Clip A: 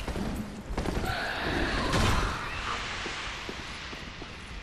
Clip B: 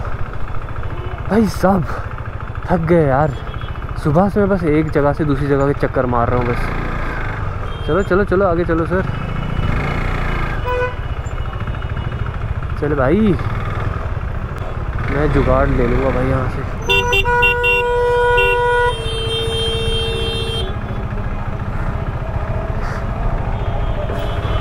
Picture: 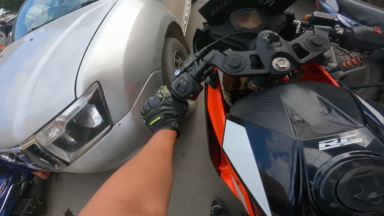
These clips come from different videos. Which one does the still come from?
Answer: B